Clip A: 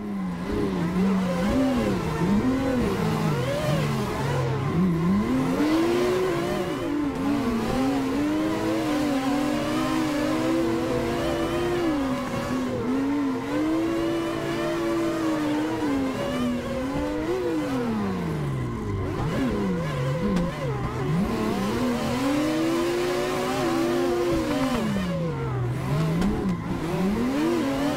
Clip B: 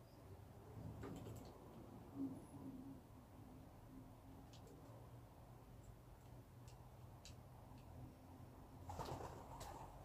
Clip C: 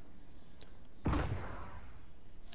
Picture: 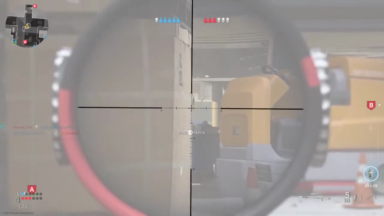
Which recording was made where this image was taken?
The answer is C